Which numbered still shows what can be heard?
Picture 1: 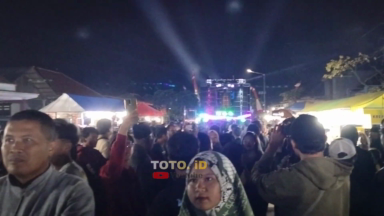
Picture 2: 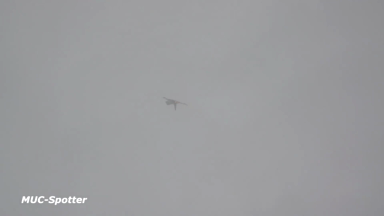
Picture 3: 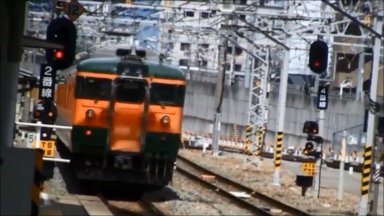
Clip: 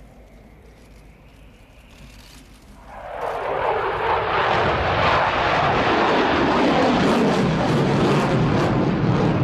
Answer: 2